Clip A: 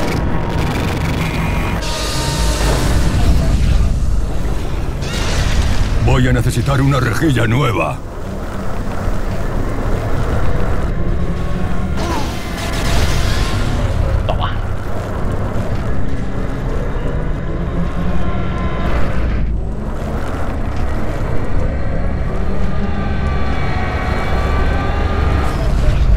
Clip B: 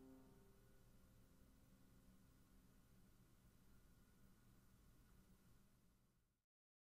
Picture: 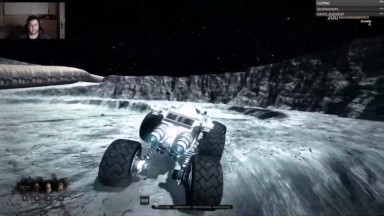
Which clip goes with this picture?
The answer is A